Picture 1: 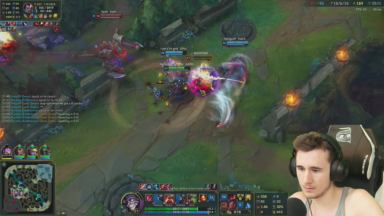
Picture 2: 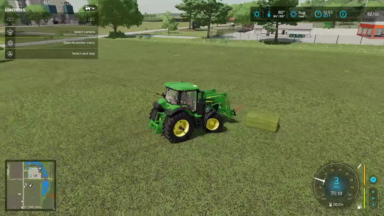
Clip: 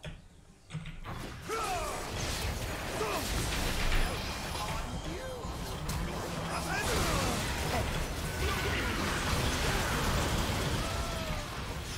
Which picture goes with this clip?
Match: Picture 1